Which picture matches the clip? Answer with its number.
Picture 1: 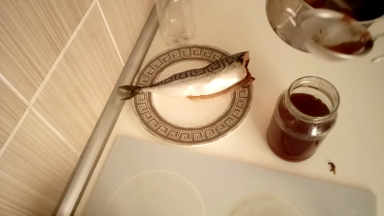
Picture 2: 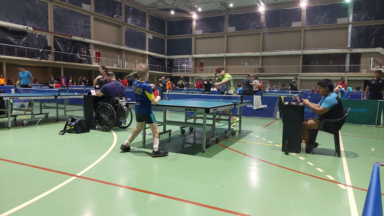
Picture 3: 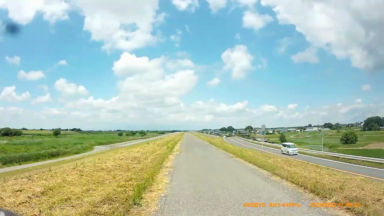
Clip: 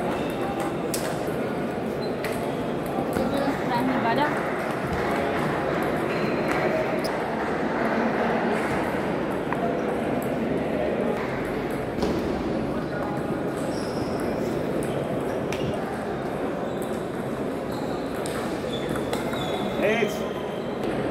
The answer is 2